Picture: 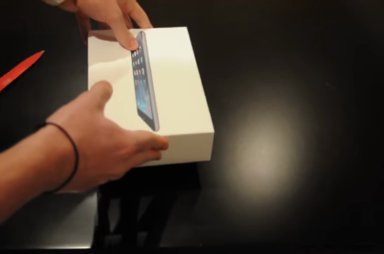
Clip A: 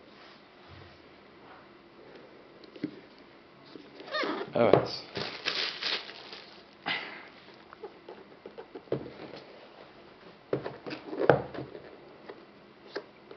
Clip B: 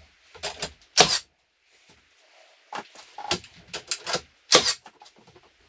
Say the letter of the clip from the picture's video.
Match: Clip A